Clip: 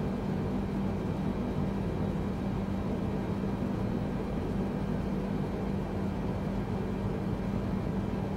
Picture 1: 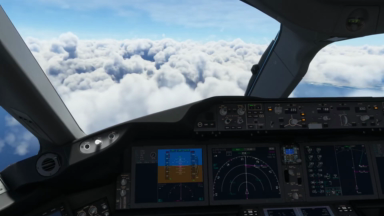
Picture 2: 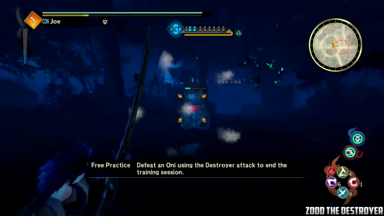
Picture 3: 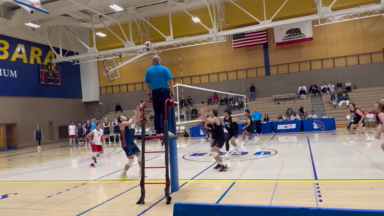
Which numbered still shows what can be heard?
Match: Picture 1